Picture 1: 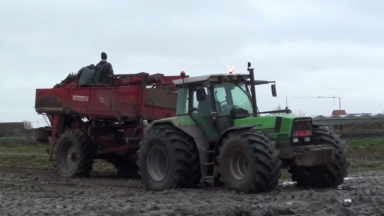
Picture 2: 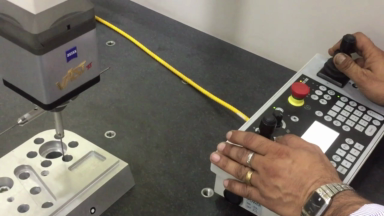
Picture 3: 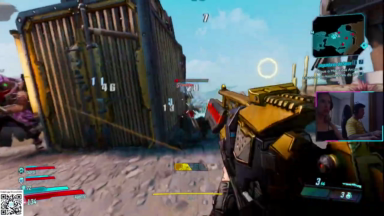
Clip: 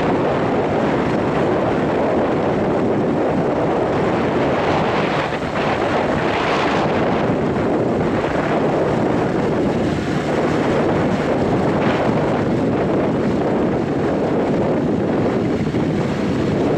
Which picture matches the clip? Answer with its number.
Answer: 1